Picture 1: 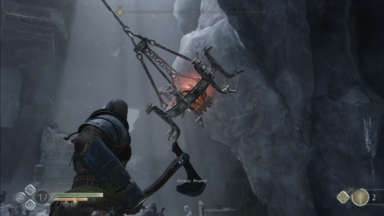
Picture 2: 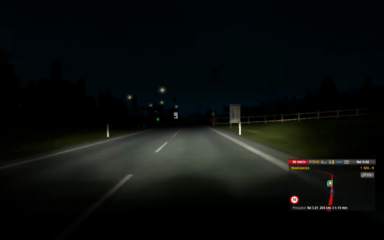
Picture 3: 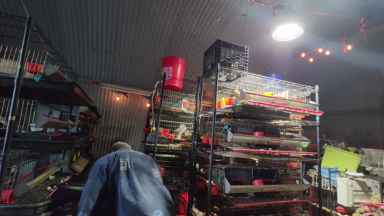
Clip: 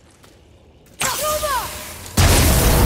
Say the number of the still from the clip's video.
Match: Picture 1